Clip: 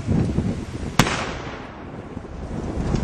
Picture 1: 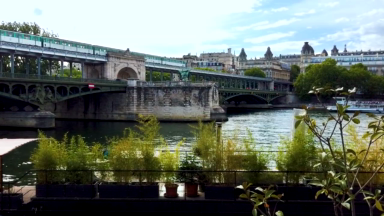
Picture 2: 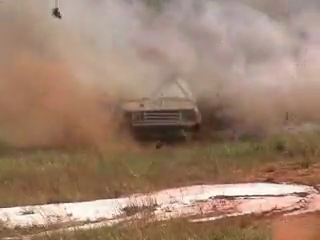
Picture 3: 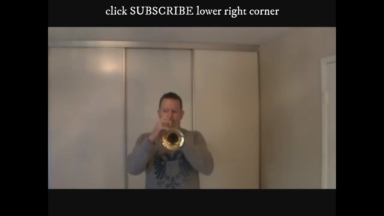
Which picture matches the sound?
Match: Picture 2